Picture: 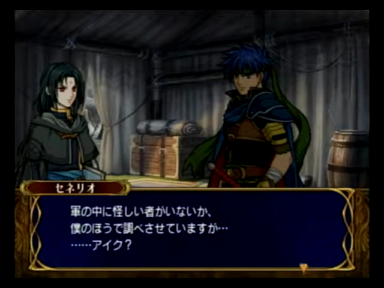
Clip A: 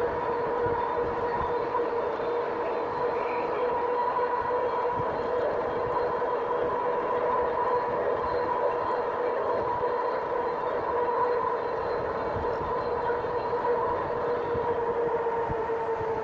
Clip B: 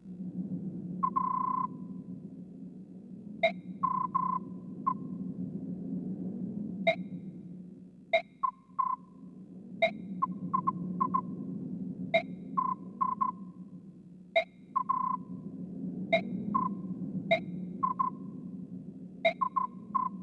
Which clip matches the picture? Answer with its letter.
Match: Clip B